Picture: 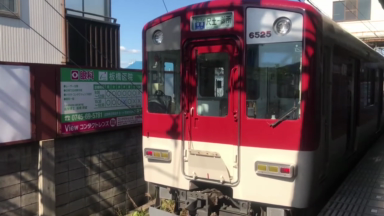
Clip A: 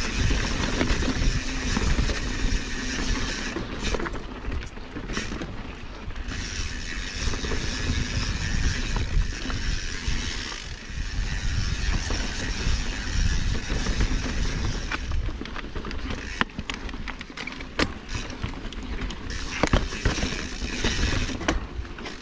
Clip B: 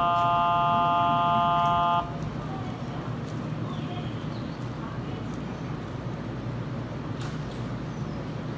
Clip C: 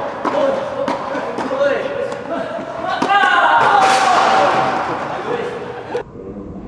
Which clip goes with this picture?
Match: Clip B